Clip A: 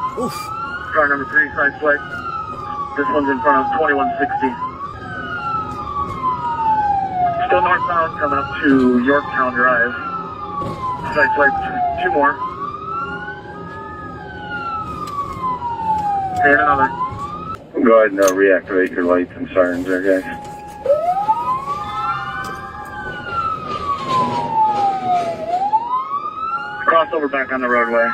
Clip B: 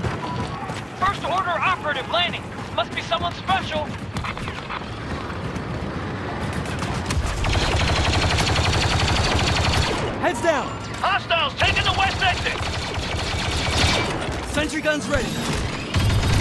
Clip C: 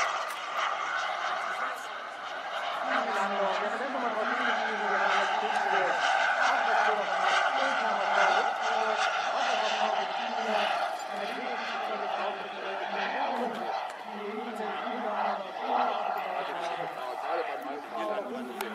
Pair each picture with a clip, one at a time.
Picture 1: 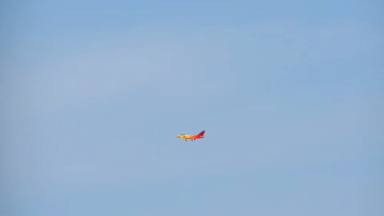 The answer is C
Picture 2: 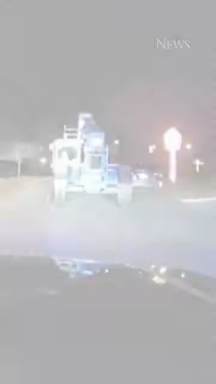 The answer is A